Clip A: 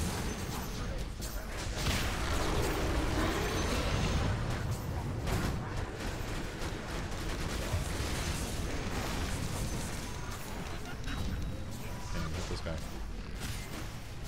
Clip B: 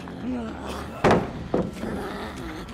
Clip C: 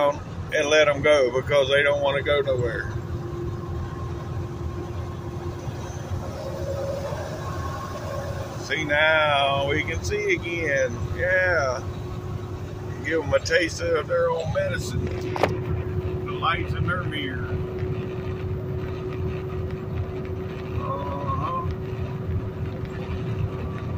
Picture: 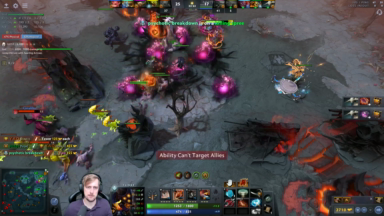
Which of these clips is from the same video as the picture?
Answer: A